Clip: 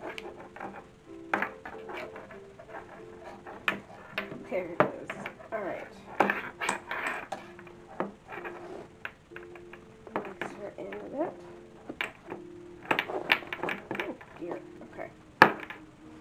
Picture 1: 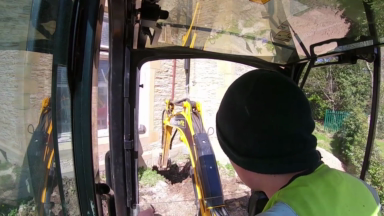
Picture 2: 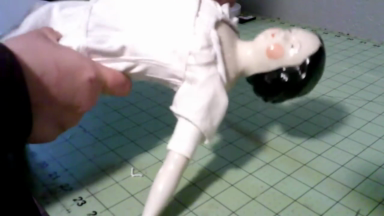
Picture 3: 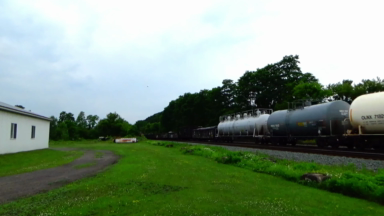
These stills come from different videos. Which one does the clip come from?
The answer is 2